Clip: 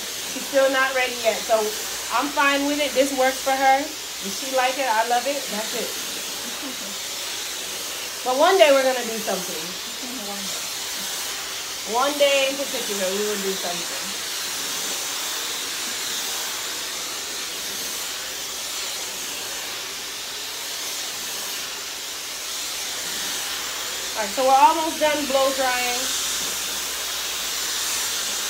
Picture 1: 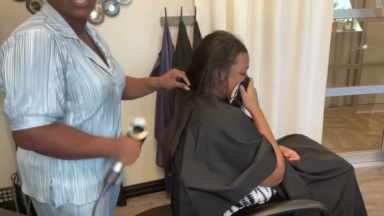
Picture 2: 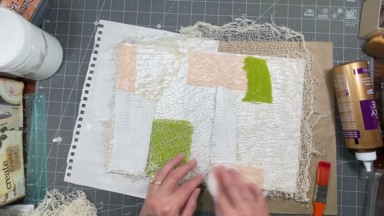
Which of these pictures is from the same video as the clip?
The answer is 1